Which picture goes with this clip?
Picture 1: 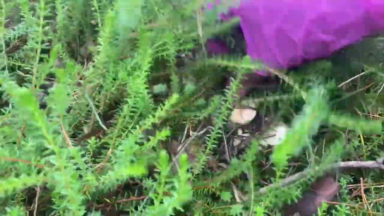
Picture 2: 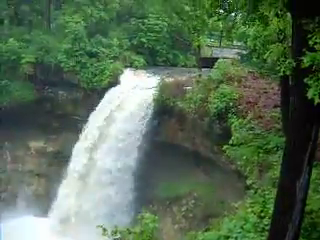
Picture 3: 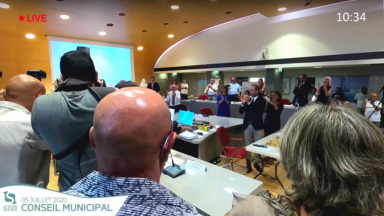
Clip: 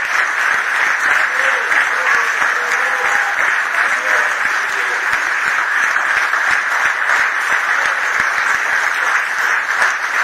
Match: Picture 3